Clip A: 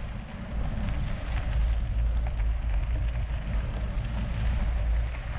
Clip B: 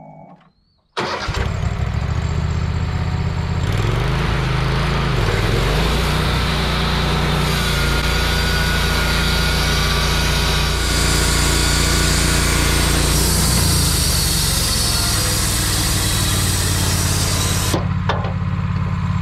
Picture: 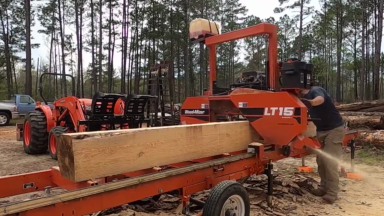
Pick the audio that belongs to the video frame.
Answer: B